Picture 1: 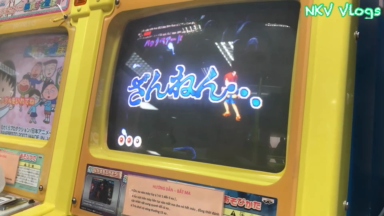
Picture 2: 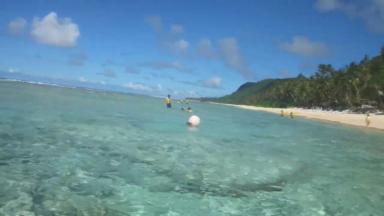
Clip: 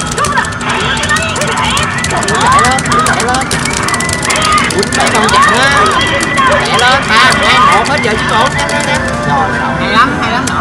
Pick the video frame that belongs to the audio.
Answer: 1